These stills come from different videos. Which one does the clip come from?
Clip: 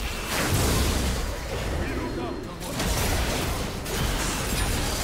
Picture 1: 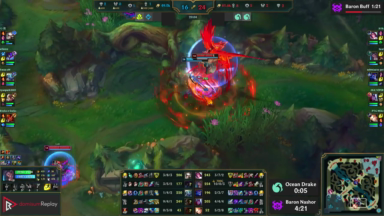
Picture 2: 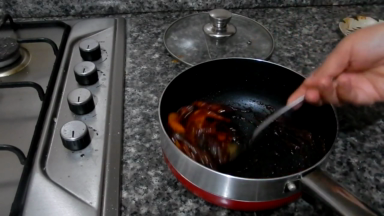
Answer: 1